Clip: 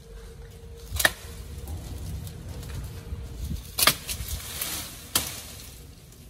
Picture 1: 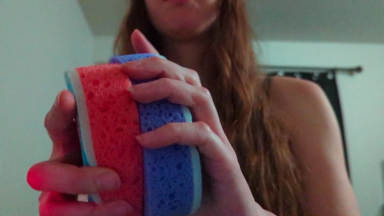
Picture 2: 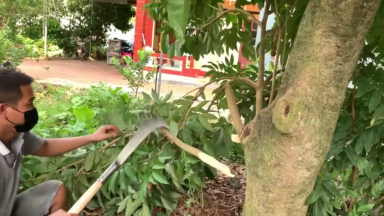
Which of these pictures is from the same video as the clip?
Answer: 2